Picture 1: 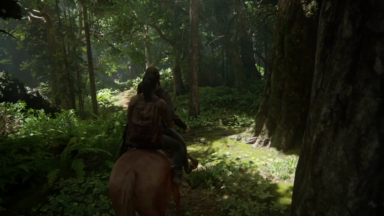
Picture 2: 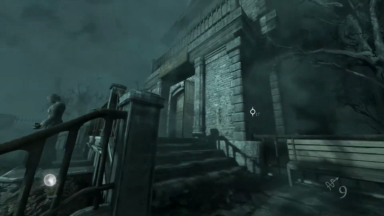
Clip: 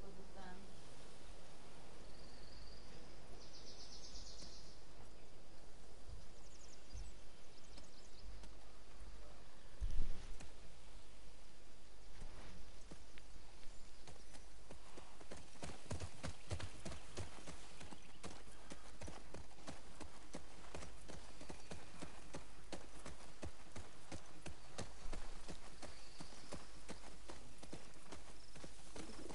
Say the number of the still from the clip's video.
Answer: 1